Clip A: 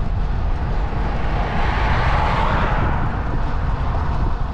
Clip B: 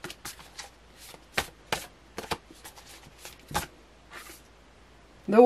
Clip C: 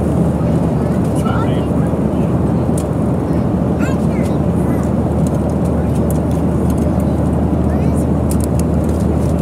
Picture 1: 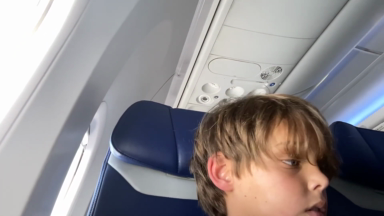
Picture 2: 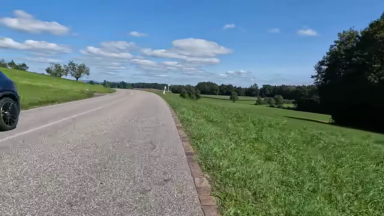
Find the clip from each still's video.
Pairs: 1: C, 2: A